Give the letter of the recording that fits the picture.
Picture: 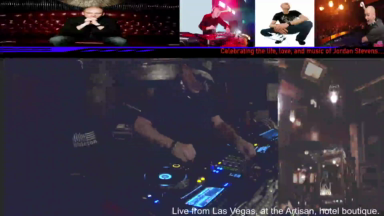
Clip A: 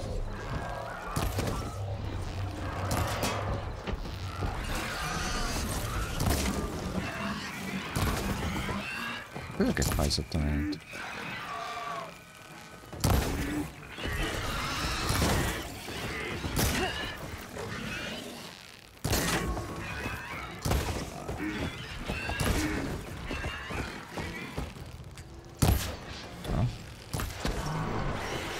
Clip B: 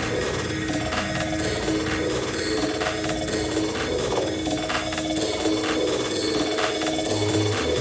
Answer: B